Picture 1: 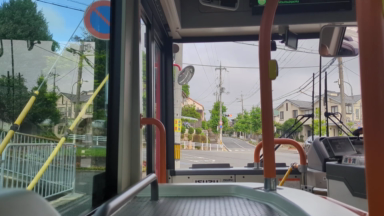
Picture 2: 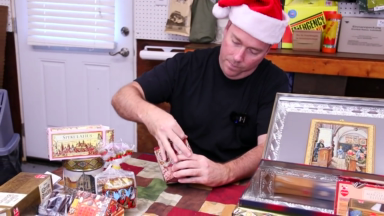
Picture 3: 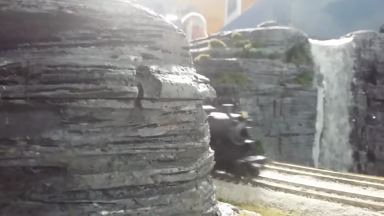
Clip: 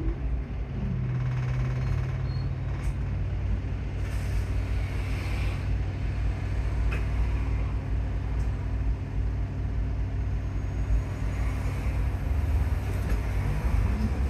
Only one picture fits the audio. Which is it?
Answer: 1